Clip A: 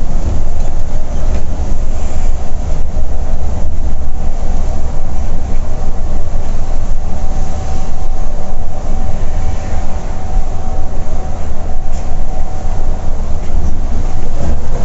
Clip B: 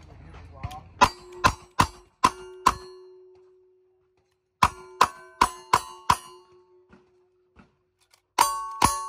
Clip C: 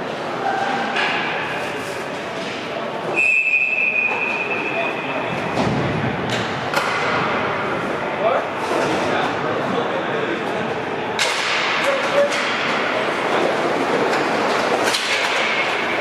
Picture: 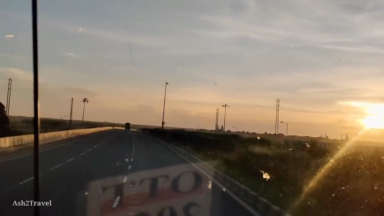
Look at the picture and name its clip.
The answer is A